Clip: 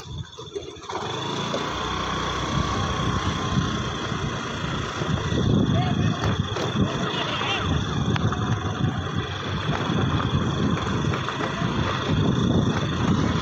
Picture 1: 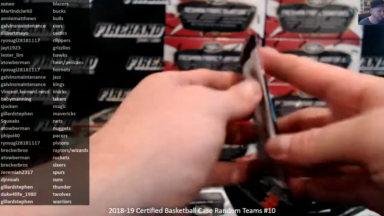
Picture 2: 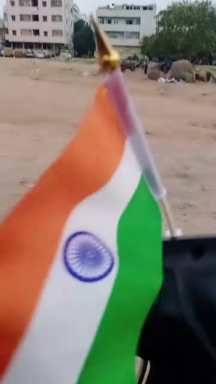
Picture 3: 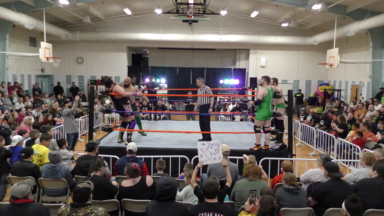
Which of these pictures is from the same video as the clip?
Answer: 2